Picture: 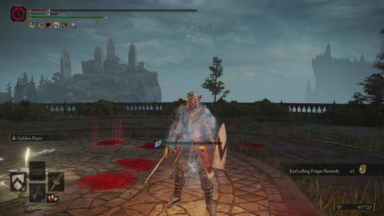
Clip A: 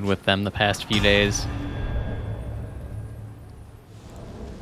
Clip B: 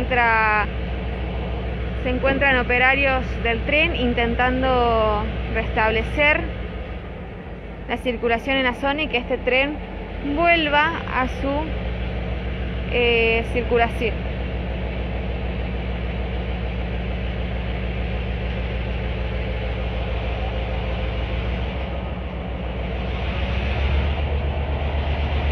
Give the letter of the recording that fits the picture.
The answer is A